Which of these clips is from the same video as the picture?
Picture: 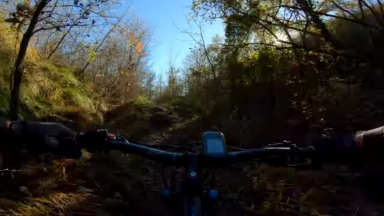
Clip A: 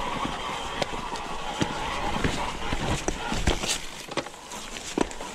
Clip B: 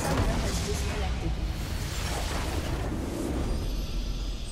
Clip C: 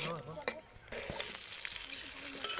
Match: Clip A